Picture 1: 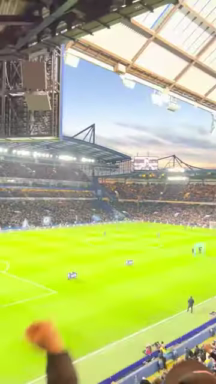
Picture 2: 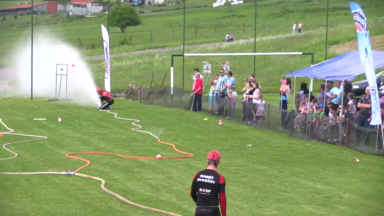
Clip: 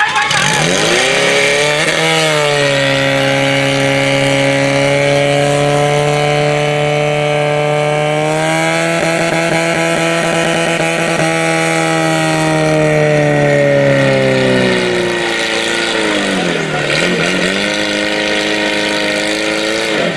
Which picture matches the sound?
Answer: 2